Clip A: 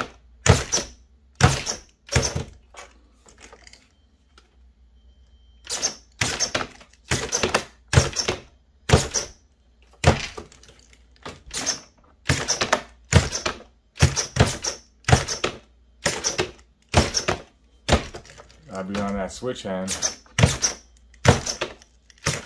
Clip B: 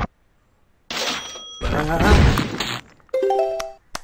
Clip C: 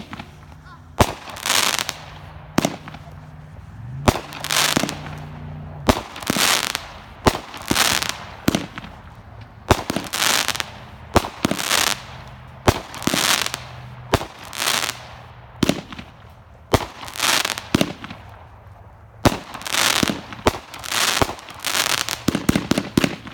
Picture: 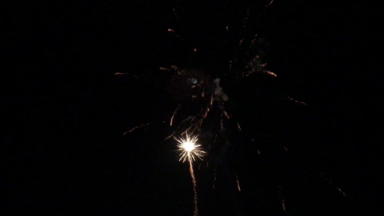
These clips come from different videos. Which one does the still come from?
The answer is C